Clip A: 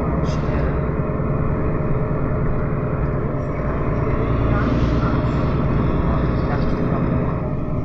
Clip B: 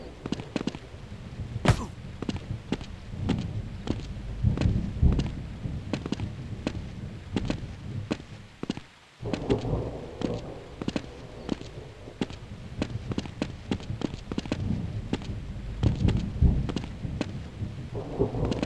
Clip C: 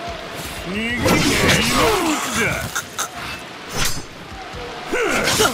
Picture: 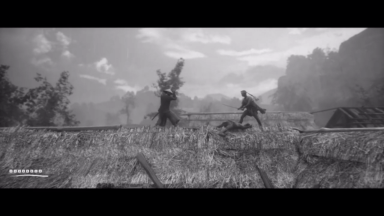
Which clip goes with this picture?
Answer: C